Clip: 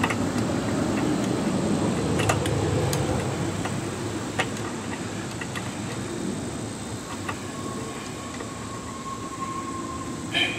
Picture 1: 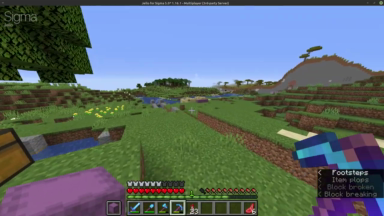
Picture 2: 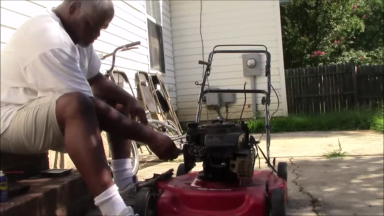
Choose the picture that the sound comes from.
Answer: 2